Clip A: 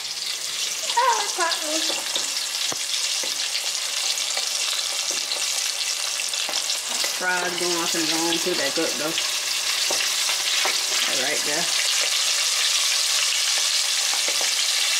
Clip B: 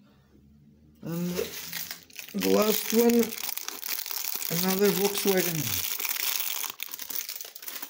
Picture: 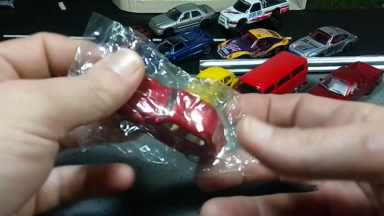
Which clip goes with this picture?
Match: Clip B